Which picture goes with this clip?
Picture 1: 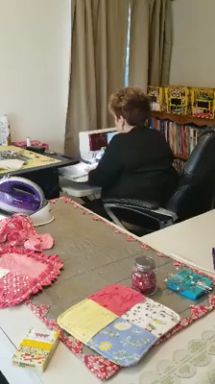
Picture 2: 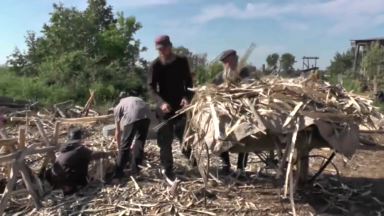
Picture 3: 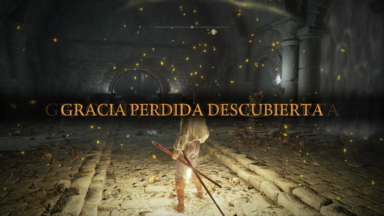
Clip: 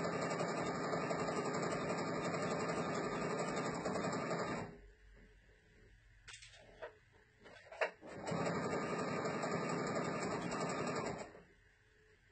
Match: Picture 1